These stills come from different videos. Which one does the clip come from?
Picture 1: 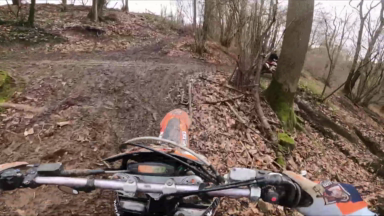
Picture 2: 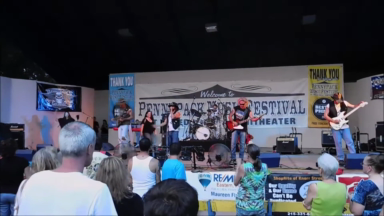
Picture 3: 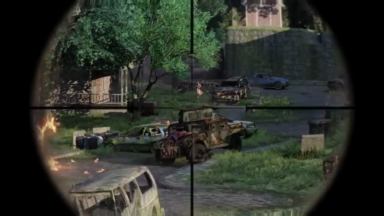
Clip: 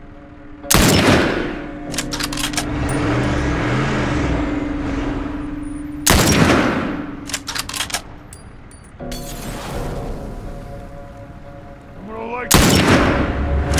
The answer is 3